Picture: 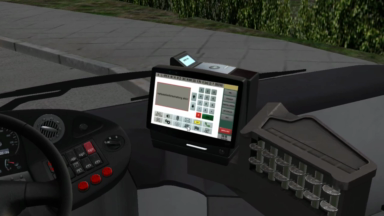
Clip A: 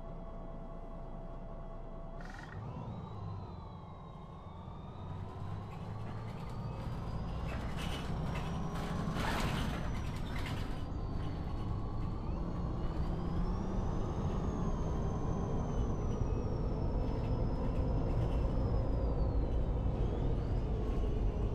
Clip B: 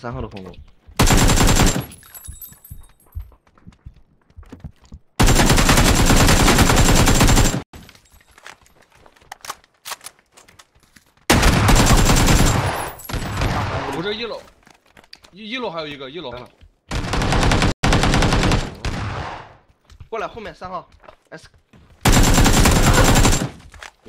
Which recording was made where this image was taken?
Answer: A